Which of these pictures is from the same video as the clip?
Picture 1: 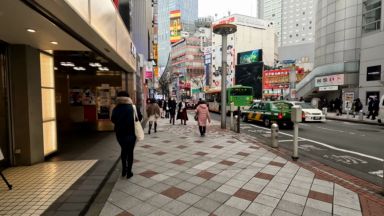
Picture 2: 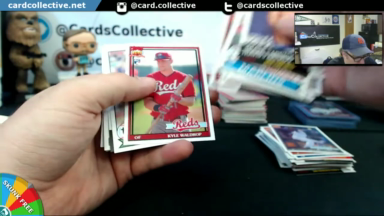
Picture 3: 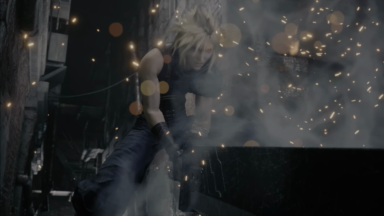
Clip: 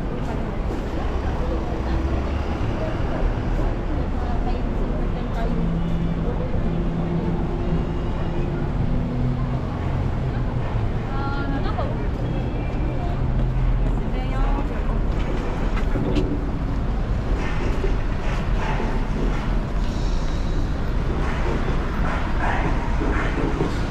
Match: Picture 1